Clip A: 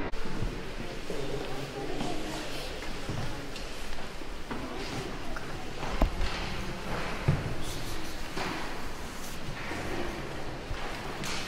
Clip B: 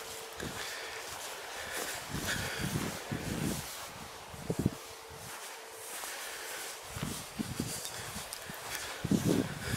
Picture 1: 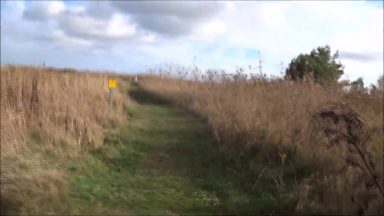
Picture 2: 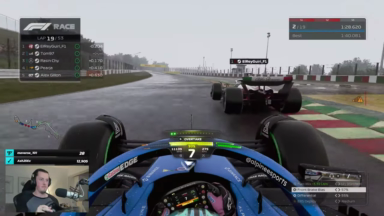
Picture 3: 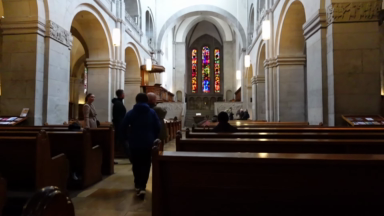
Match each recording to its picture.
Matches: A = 3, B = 1